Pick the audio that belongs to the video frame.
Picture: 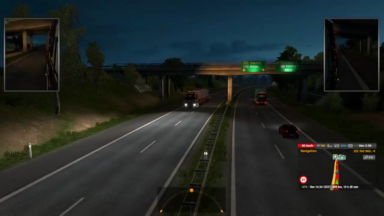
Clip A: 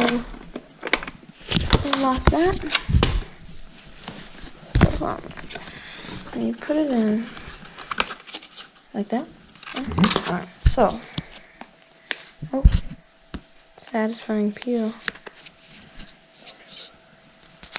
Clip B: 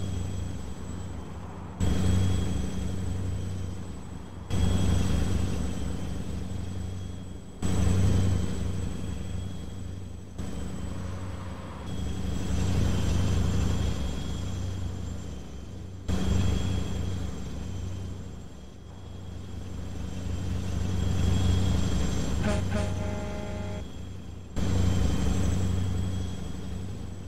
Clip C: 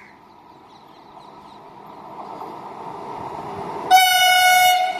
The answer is B